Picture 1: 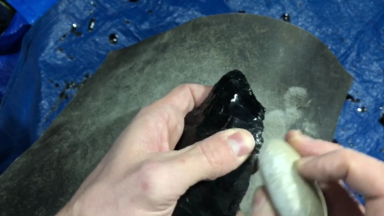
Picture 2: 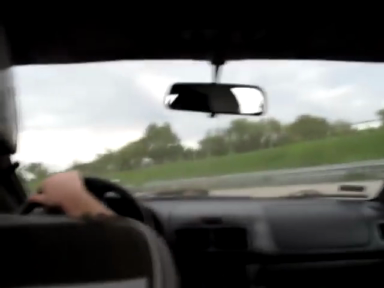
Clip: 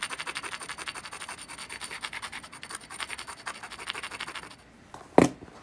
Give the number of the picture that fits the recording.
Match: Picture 1